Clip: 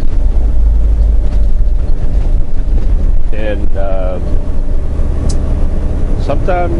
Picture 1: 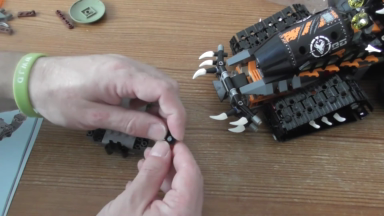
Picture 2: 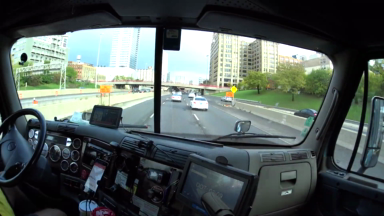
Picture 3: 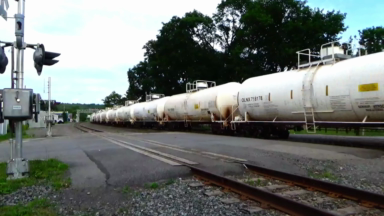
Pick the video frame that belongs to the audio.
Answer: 2